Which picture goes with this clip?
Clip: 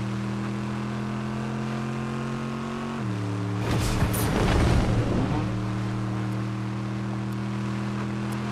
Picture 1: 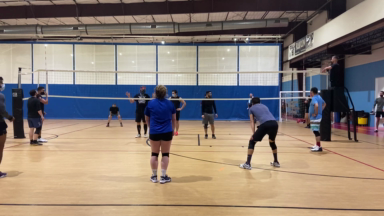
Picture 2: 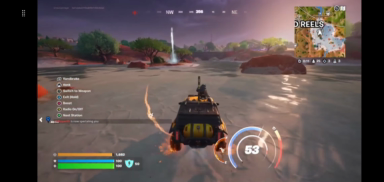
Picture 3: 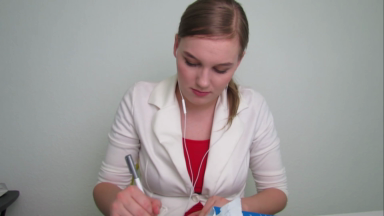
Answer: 2